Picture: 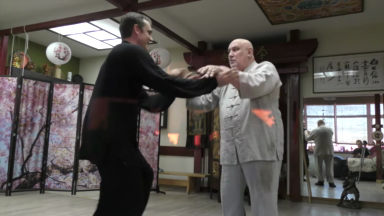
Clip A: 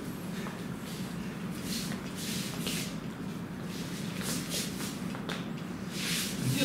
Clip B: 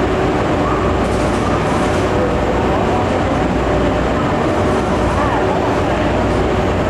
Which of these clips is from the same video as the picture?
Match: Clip A